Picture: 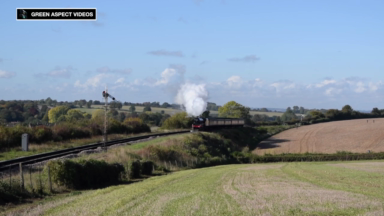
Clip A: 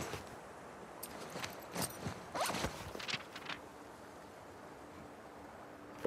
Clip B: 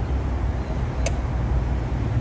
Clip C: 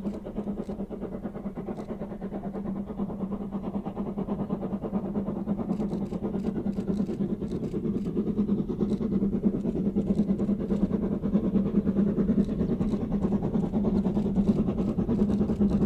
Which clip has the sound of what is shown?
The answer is C